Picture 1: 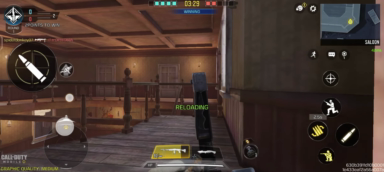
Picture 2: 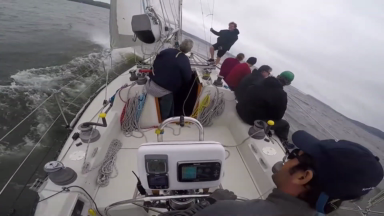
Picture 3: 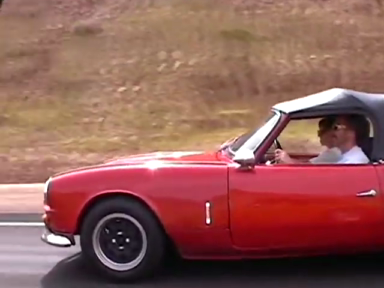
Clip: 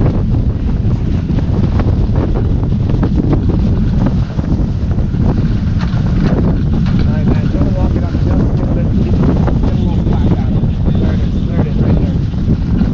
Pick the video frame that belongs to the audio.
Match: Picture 2